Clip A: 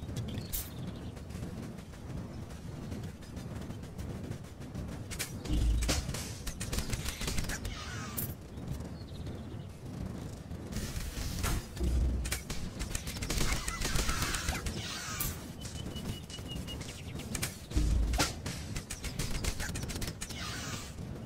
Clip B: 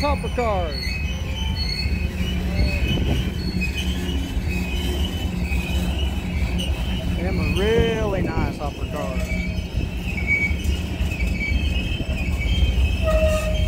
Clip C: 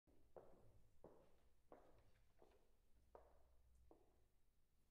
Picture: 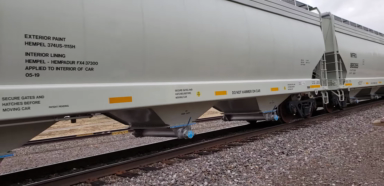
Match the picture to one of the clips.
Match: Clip B